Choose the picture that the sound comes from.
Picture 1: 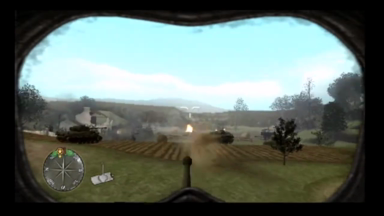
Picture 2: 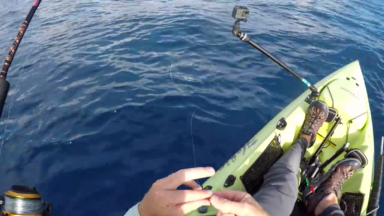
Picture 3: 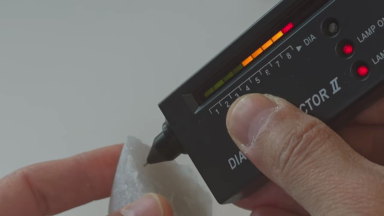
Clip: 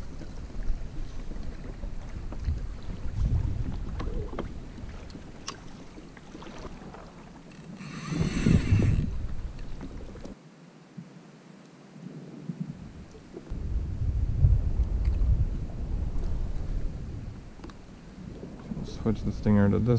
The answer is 2